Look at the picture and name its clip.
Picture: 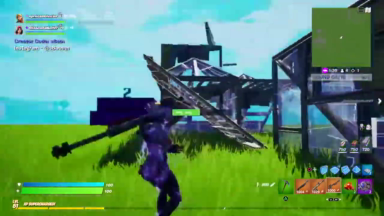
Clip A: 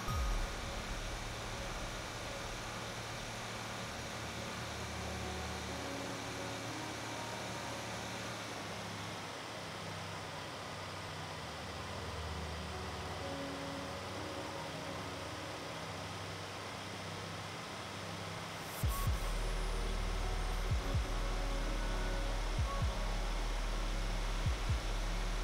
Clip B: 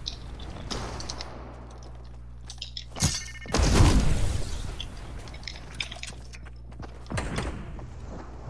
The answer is B